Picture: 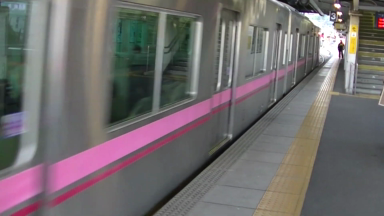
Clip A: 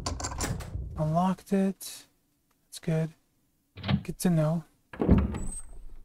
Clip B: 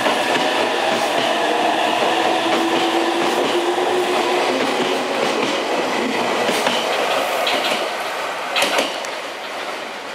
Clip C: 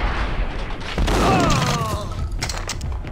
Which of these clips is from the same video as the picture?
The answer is B